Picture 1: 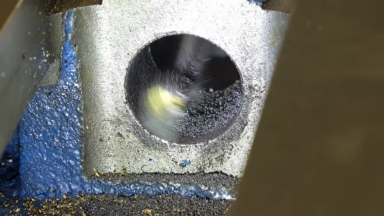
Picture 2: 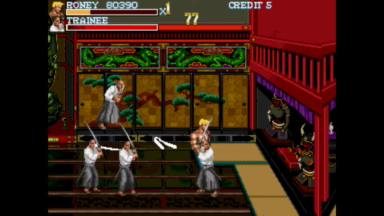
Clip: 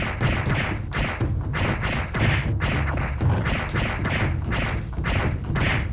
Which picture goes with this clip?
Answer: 2